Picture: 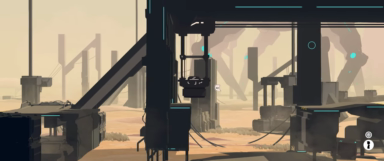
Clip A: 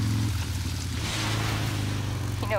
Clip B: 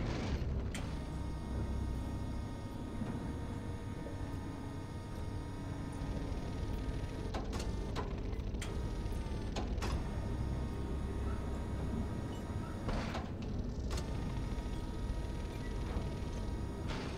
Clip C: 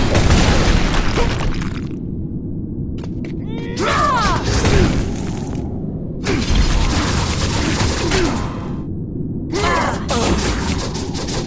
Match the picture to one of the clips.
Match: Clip B